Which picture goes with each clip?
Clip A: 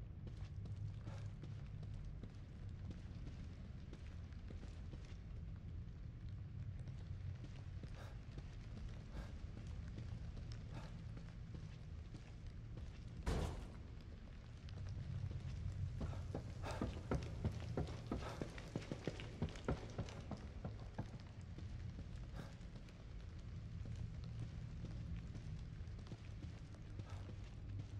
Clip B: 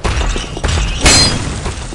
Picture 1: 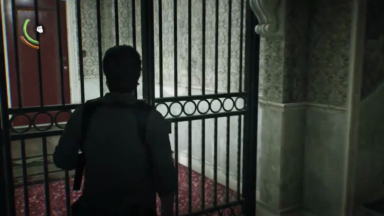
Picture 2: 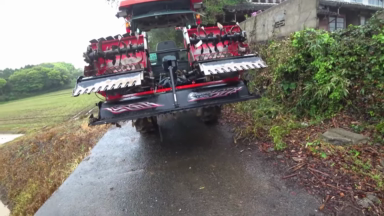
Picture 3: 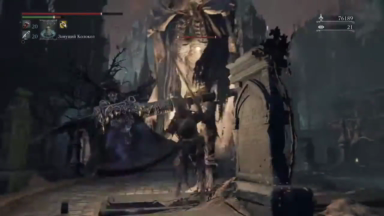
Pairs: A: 1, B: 3